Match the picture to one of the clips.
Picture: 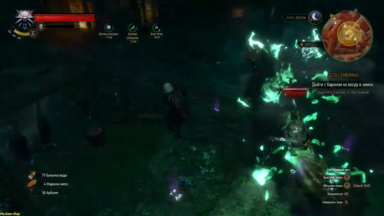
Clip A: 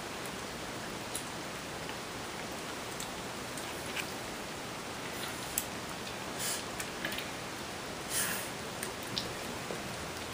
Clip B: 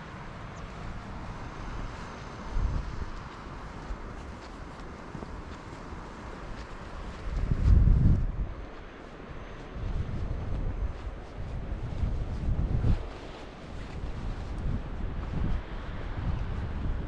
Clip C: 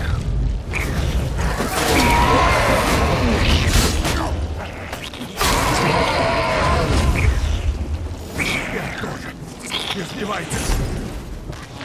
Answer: C